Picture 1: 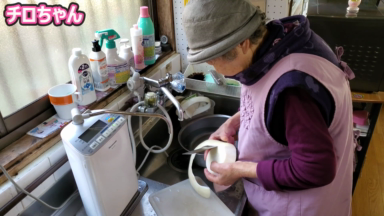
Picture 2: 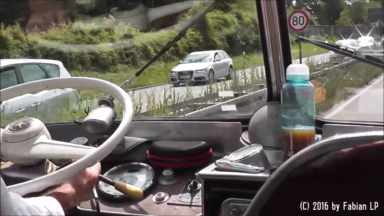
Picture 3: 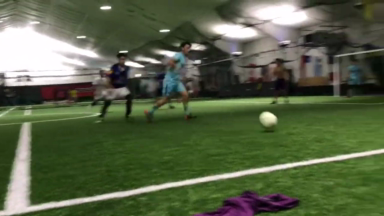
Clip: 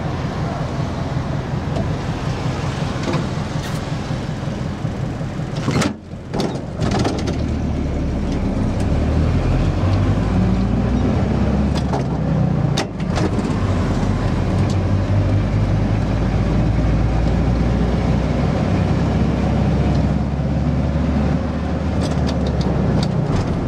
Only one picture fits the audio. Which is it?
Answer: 2